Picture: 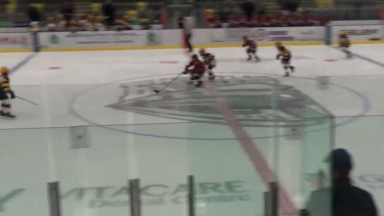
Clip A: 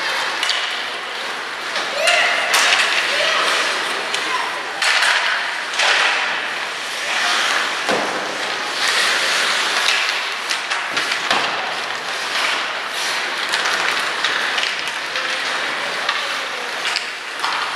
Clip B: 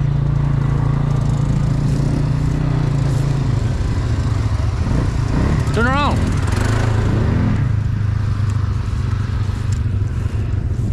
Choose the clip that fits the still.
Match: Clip A